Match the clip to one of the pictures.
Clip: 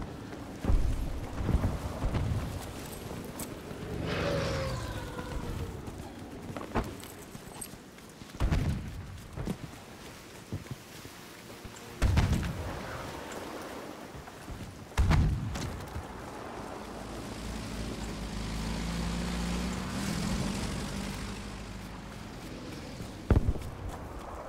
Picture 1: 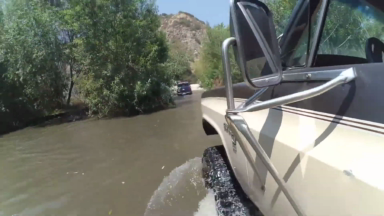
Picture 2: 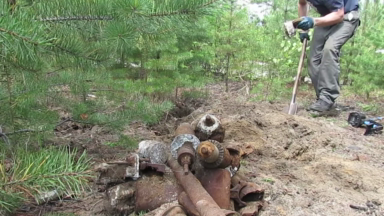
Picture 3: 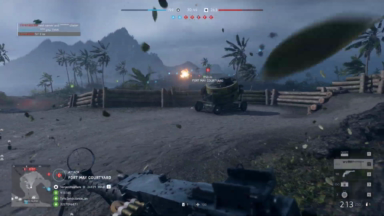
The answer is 3